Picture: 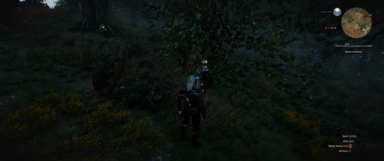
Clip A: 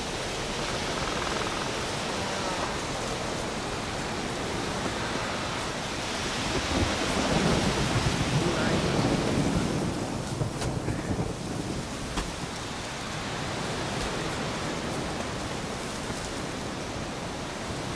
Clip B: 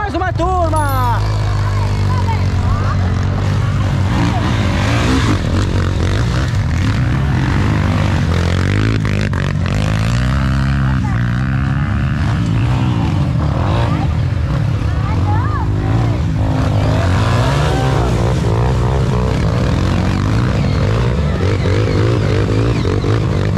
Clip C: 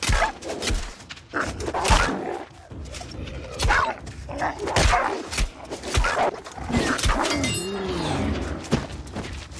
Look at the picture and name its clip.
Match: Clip A